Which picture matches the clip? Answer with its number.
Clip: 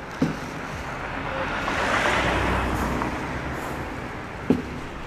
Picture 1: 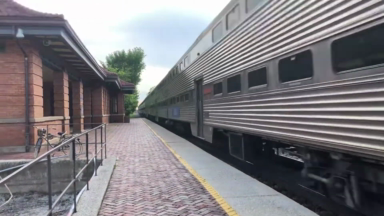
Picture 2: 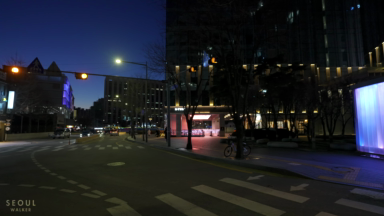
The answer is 2